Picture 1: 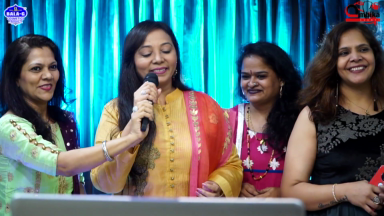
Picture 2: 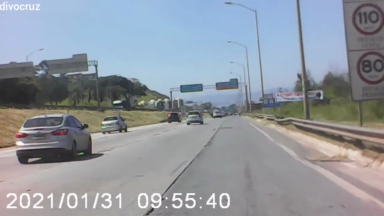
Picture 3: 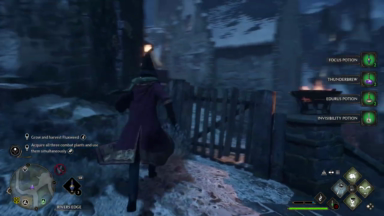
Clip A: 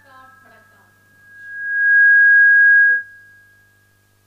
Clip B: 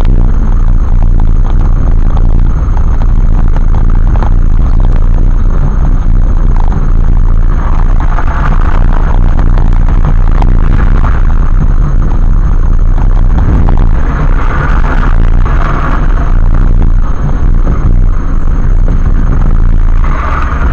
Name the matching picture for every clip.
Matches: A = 1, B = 2